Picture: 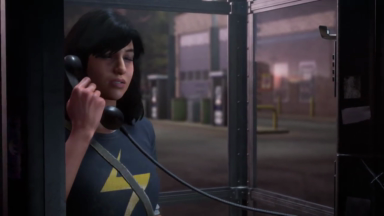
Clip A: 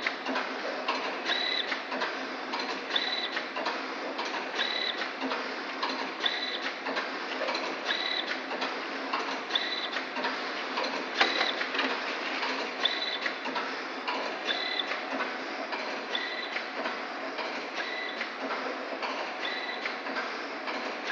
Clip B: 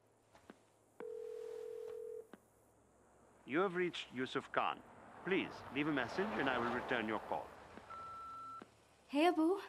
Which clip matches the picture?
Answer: B